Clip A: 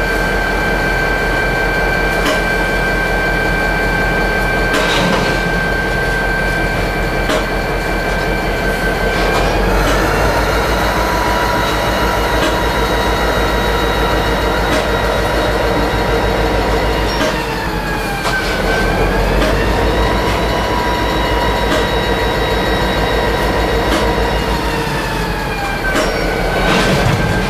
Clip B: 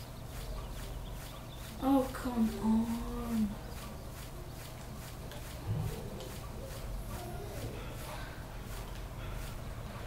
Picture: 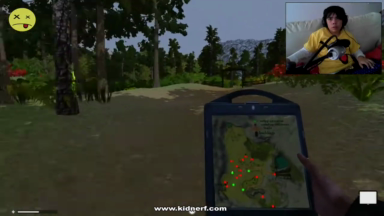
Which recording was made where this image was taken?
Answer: B